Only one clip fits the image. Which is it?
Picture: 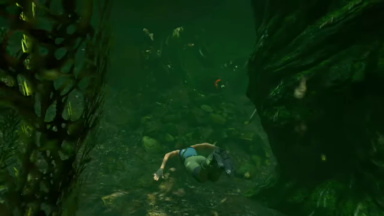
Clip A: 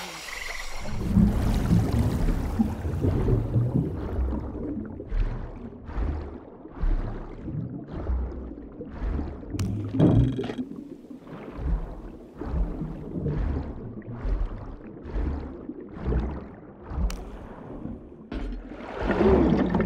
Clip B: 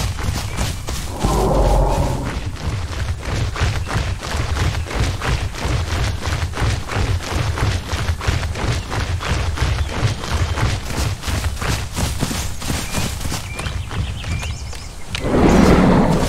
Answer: A